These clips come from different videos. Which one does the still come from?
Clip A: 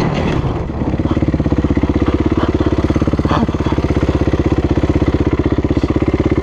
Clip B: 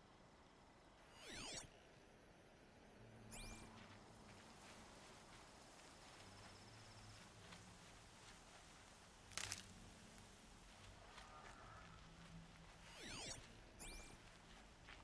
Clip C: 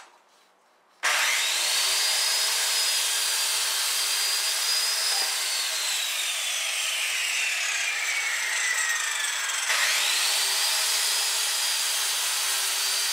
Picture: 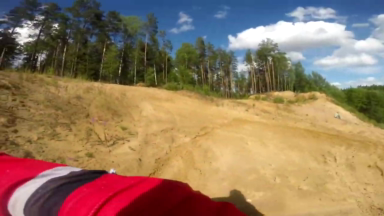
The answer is A